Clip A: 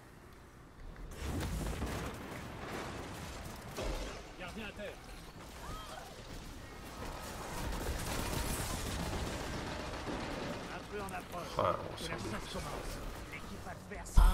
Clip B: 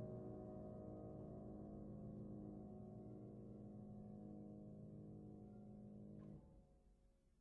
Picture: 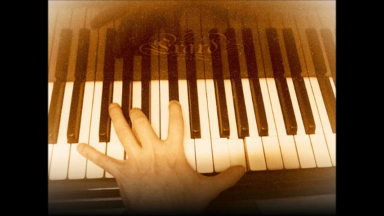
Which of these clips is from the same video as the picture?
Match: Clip B